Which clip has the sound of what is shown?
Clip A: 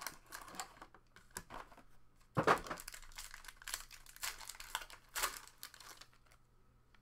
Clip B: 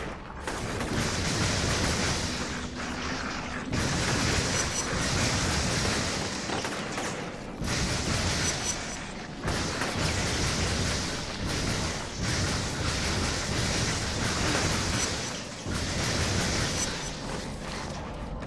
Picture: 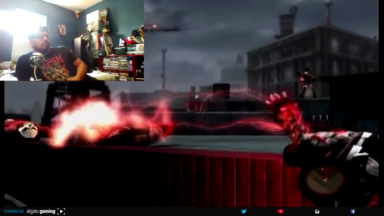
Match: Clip B